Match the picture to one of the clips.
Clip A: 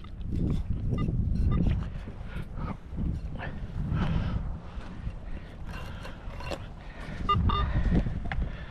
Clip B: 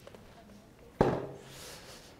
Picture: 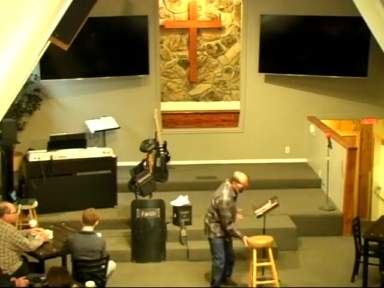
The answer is B